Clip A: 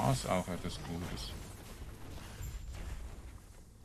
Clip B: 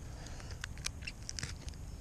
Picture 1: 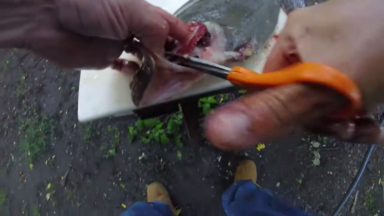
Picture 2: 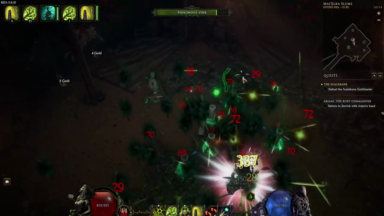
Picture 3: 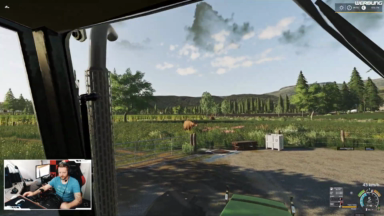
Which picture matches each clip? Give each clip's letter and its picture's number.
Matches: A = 2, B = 1